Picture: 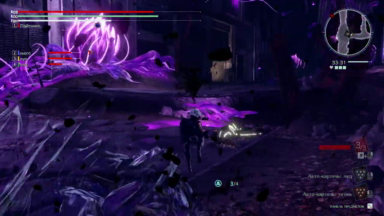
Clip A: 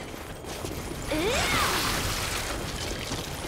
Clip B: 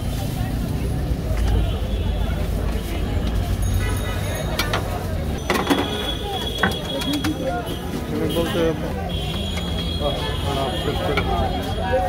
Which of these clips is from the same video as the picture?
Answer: A